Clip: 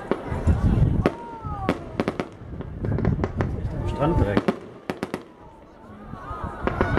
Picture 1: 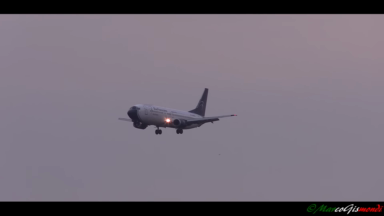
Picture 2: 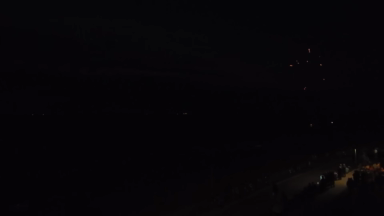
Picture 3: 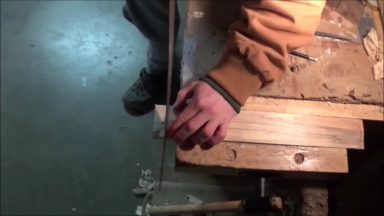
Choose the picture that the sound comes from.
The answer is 2